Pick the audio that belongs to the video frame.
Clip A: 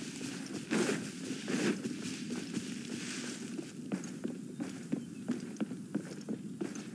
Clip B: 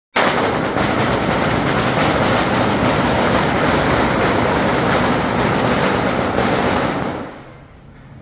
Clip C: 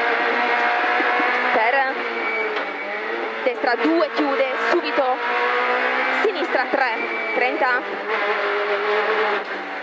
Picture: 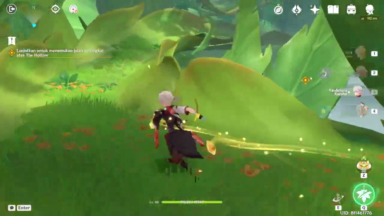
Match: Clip A